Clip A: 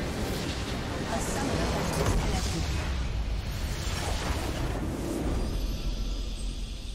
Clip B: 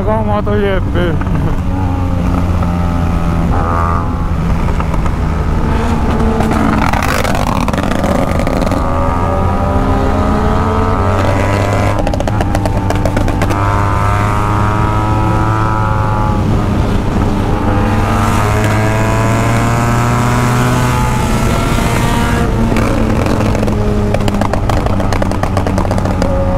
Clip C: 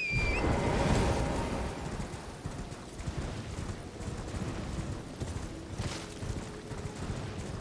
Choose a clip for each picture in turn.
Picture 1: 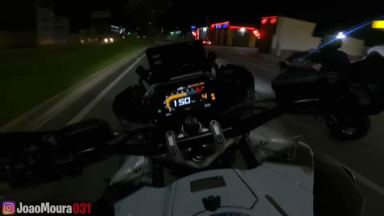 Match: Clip B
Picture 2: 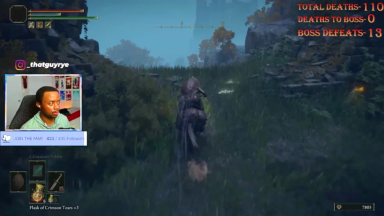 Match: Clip C